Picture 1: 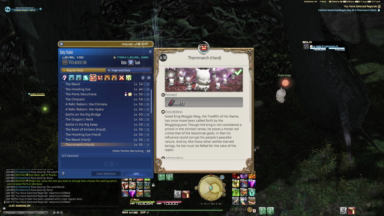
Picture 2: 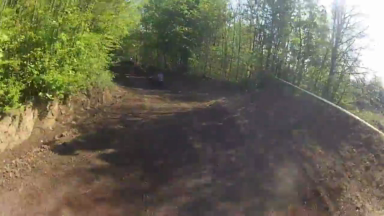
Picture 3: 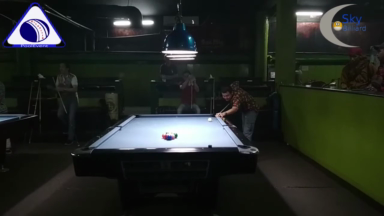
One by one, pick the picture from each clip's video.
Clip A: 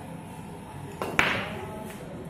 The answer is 3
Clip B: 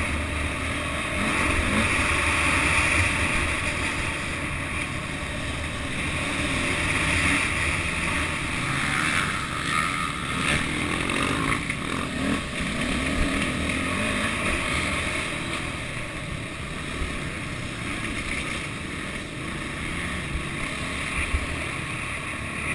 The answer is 2